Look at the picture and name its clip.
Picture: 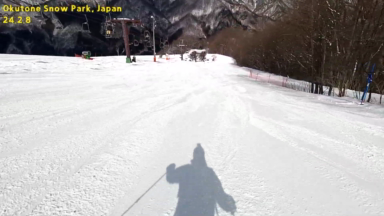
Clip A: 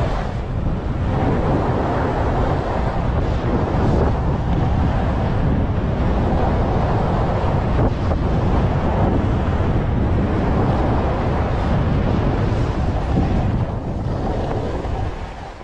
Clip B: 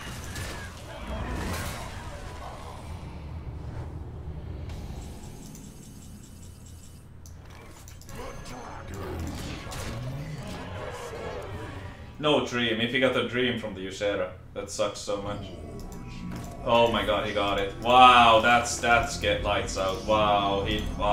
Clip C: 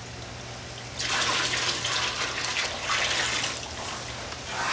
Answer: A